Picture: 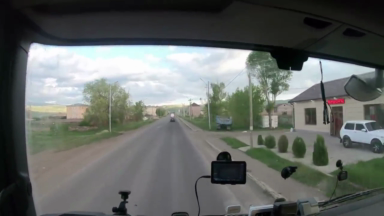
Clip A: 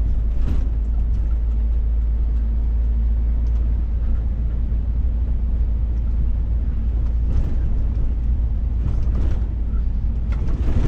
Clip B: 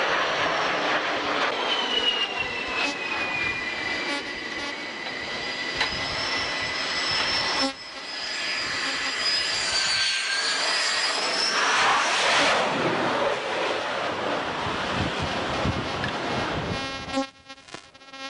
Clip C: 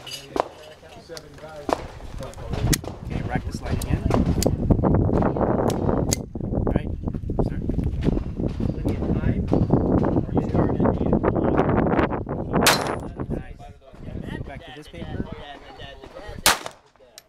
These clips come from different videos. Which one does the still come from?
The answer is A